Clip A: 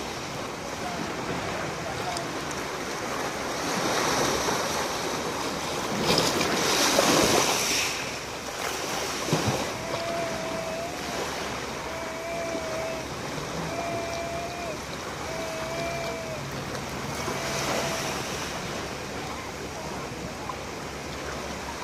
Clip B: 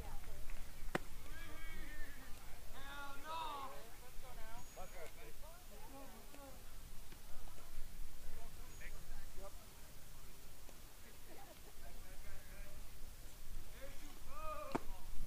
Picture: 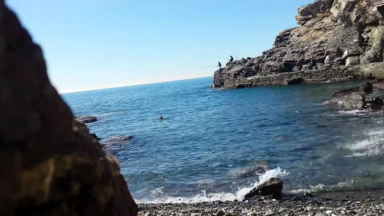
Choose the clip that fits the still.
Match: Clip A